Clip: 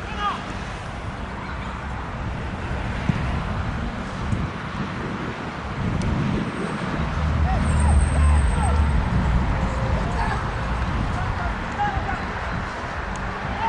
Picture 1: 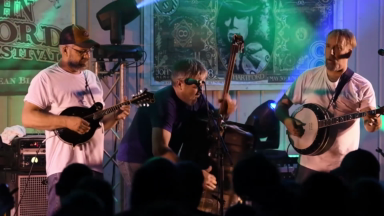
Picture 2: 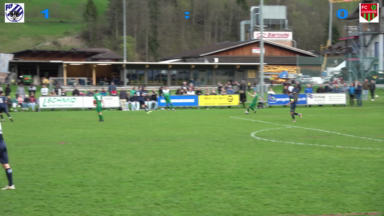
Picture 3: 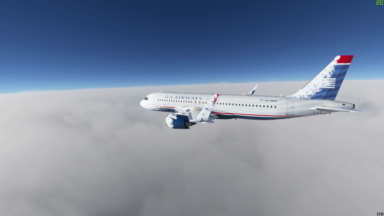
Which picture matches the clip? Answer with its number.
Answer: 2